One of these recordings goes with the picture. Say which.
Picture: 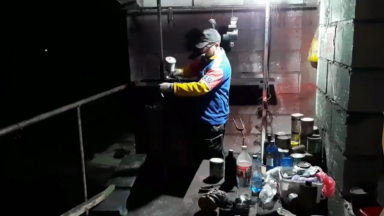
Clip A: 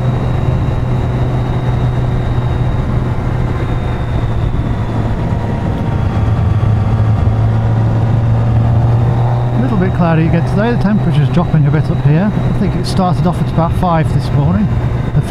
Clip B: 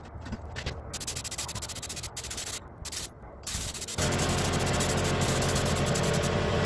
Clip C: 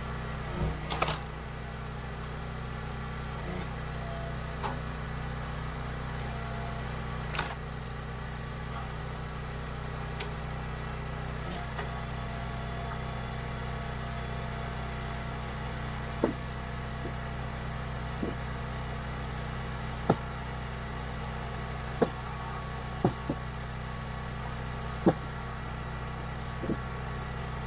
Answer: B